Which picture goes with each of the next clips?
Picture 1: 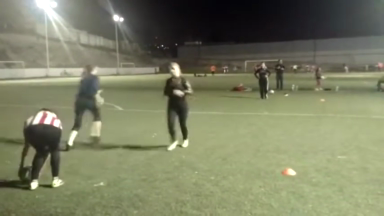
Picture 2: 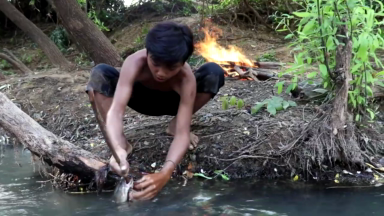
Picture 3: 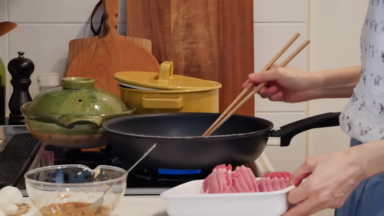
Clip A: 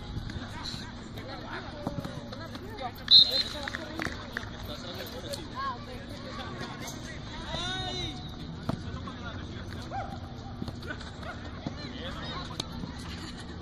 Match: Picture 1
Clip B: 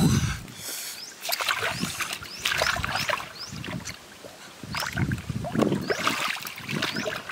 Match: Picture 2